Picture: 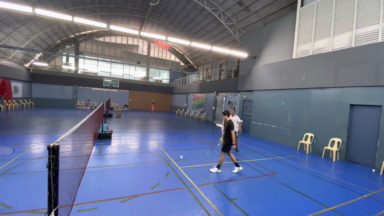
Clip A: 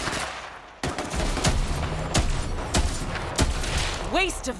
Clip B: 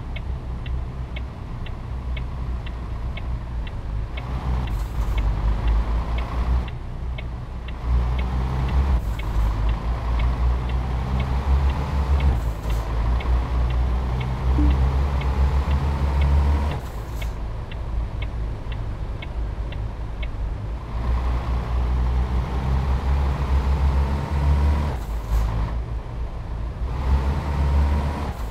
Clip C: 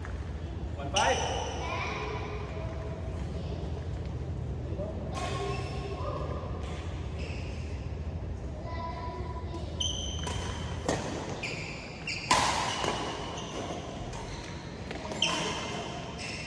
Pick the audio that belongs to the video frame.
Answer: C